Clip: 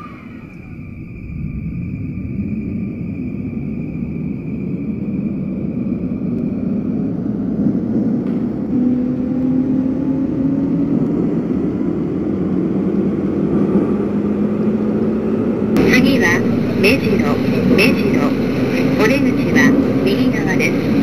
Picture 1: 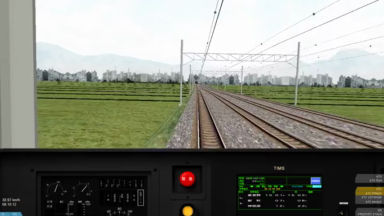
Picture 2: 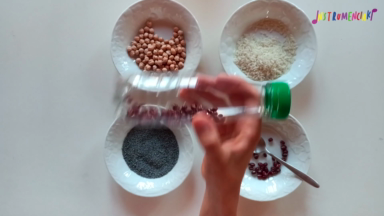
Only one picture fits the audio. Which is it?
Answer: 1